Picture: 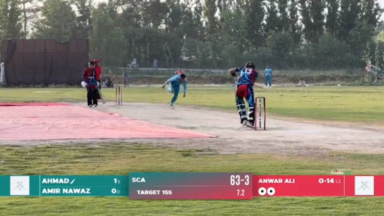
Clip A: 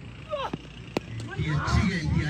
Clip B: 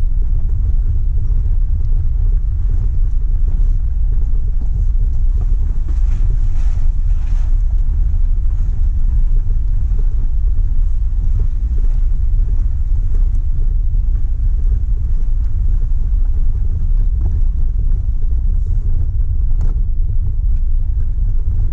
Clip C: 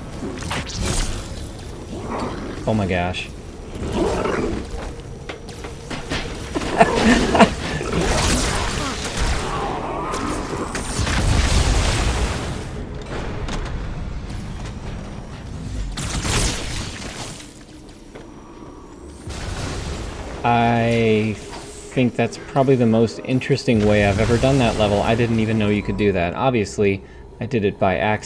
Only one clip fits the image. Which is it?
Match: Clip A